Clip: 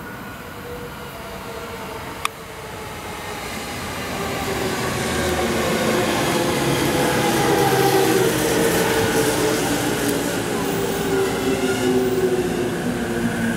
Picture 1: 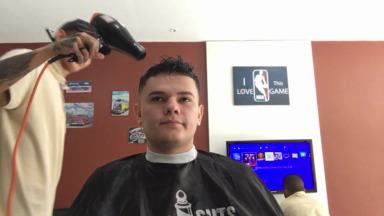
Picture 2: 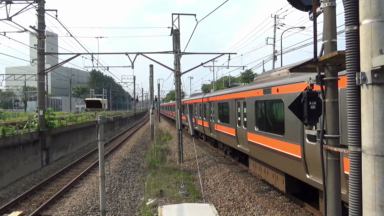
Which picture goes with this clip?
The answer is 2